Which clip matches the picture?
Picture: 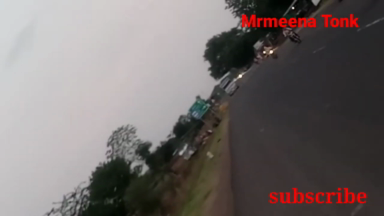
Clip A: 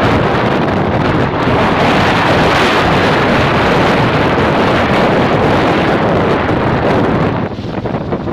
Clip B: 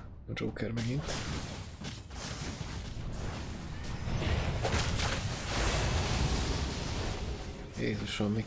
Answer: A